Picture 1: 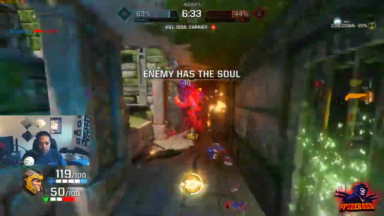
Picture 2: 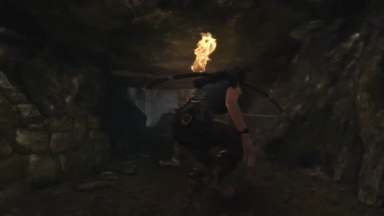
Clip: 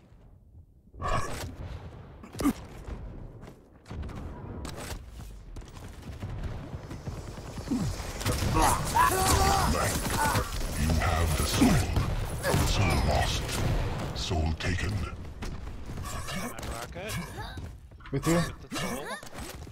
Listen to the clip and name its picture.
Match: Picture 1